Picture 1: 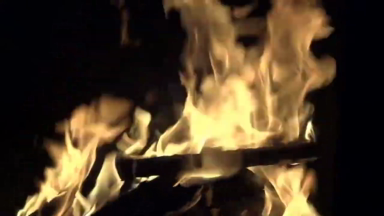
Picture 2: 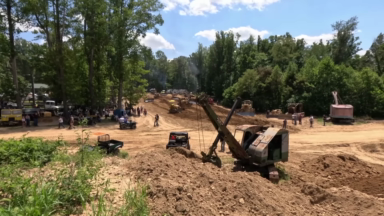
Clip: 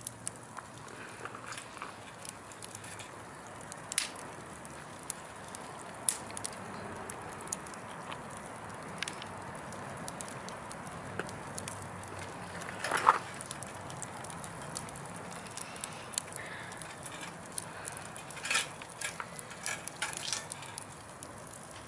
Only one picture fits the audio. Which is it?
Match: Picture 1